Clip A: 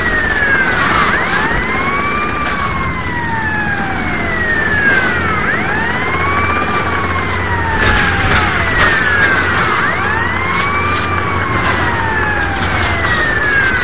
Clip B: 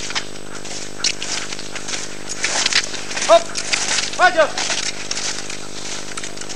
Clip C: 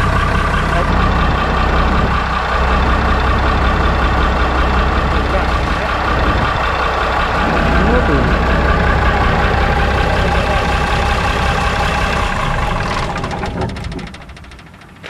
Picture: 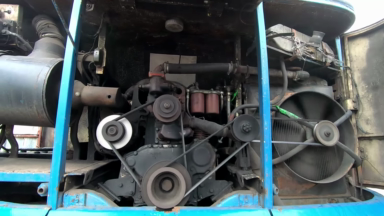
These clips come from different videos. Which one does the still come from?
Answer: C